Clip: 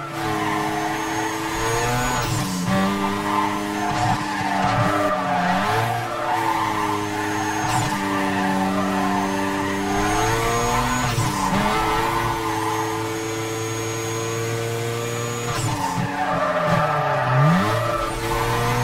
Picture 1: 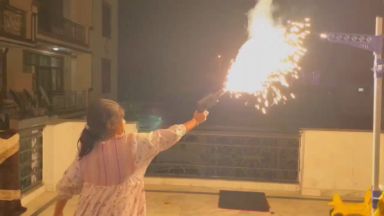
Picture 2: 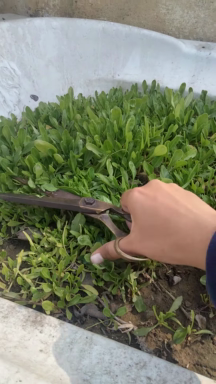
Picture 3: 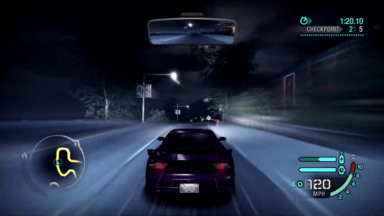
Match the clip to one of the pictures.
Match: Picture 3